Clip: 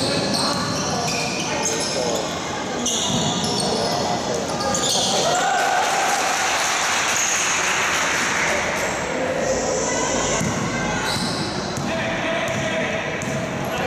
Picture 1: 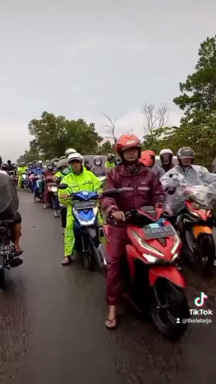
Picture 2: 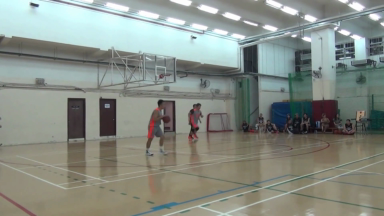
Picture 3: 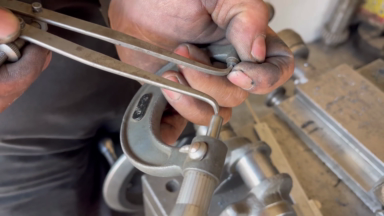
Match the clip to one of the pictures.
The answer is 2